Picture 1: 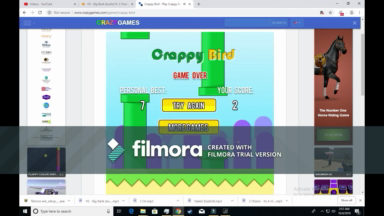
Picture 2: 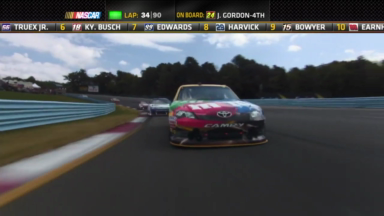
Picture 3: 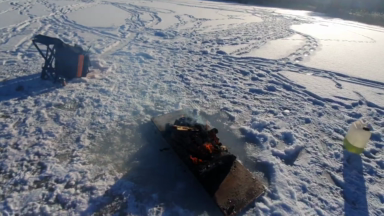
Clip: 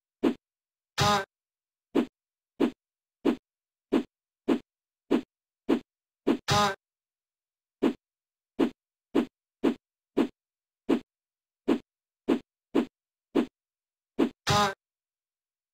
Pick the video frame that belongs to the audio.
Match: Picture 1